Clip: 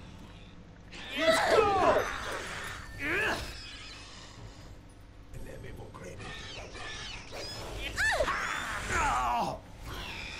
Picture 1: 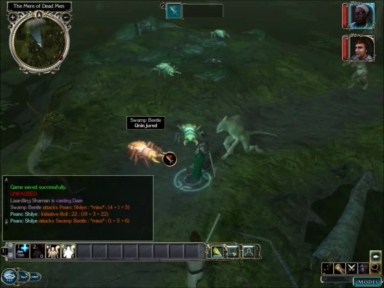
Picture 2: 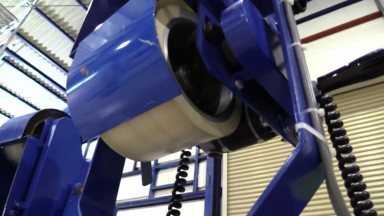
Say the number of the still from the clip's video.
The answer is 1